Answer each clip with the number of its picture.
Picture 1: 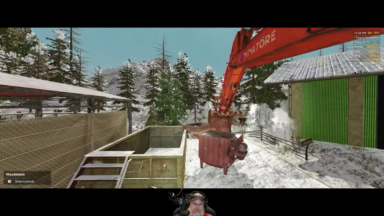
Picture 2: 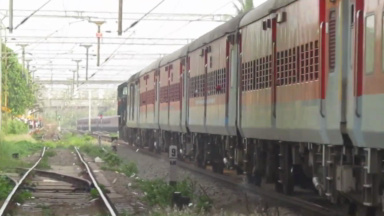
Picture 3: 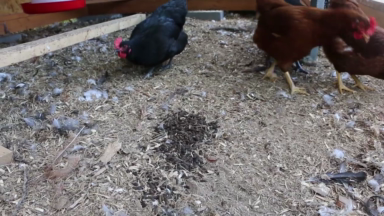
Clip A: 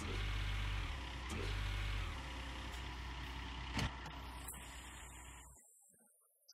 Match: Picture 1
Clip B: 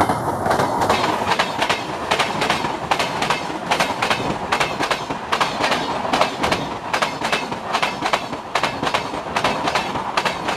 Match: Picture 2